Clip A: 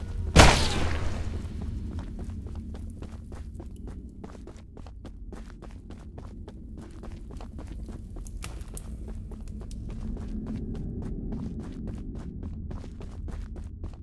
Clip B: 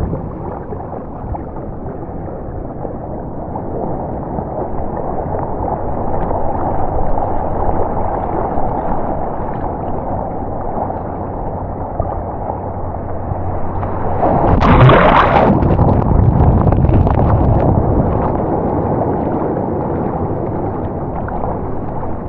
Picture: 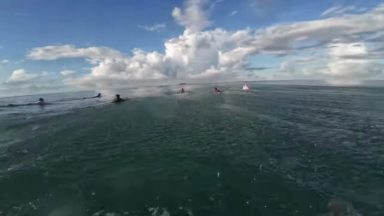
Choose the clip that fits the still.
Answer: B